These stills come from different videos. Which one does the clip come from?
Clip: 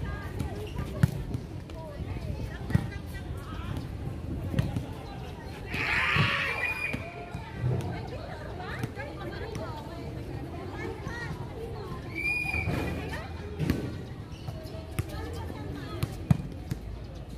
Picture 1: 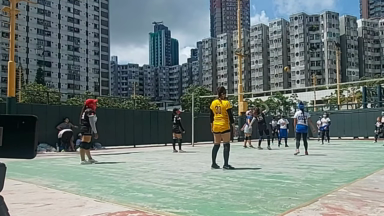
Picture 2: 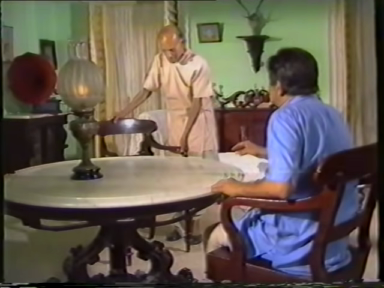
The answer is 1